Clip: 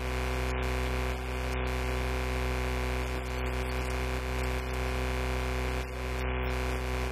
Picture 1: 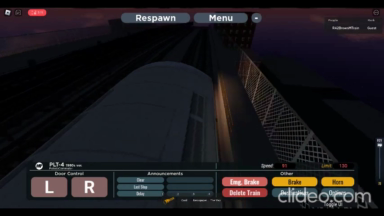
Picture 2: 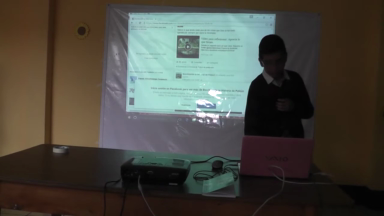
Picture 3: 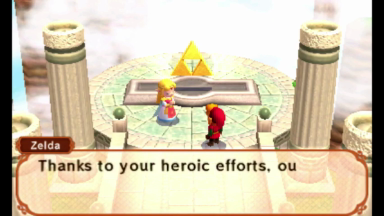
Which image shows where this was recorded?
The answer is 2